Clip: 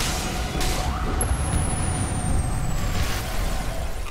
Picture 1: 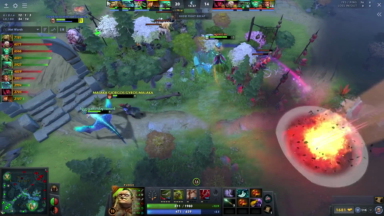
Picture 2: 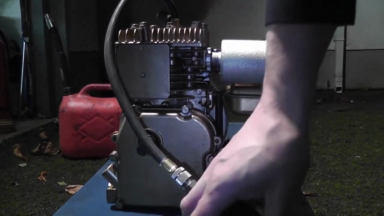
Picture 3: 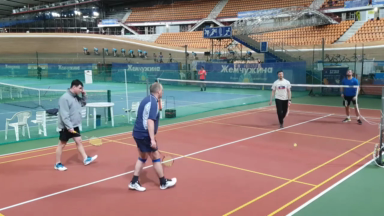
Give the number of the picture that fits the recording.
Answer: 1